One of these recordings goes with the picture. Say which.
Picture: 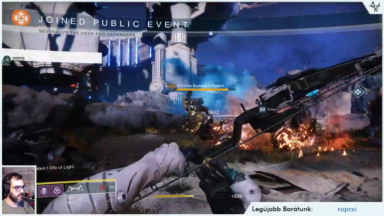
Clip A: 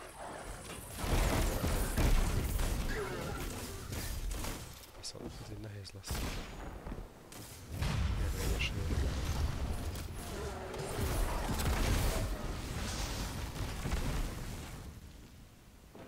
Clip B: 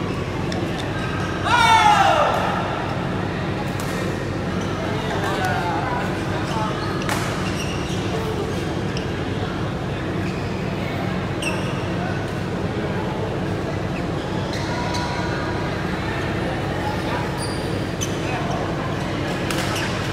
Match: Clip A